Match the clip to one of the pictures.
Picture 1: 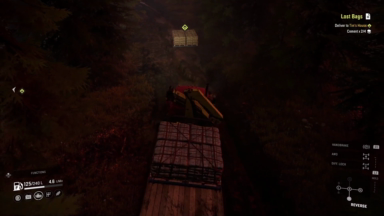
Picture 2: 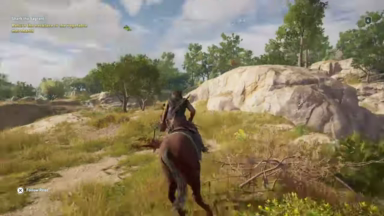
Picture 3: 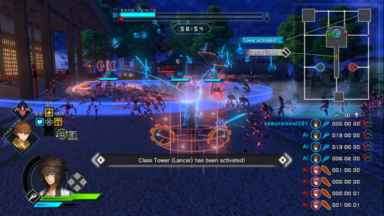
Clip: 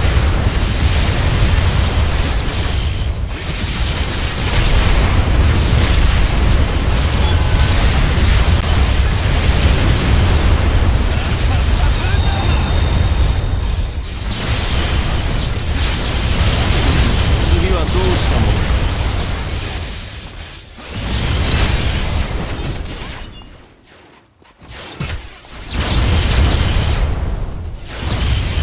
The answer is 3